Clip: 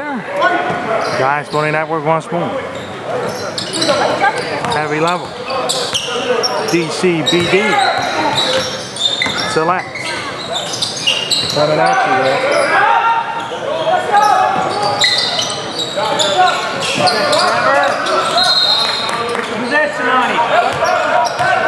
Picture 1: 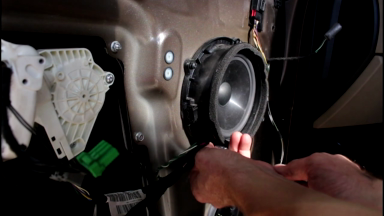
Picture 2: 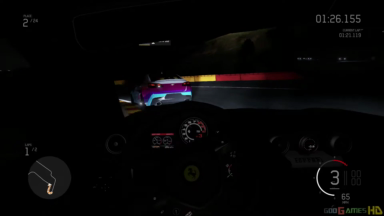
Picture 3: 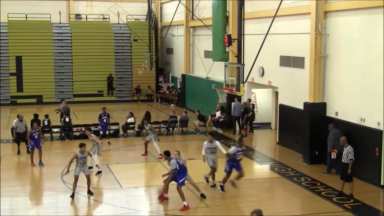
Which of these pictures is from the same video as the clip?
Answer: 3